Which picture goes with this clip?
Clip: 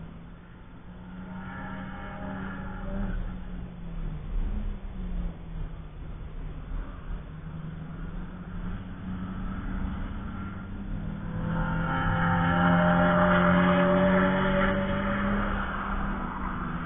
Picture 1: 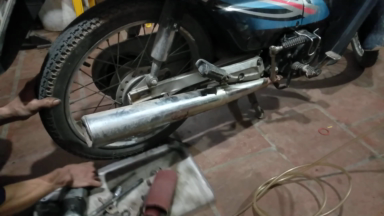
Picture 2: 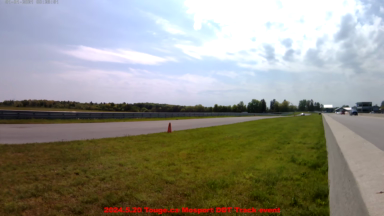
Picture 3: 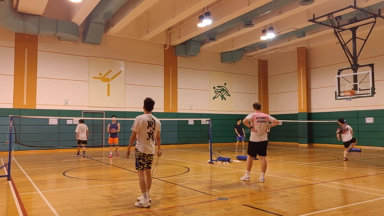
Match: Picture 2